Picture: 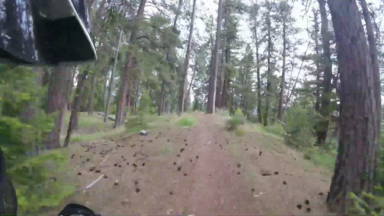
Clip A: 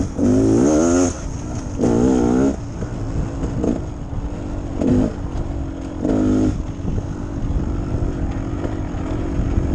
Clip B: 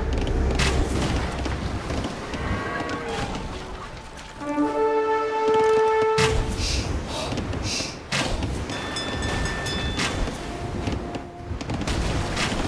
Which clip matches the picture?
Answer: A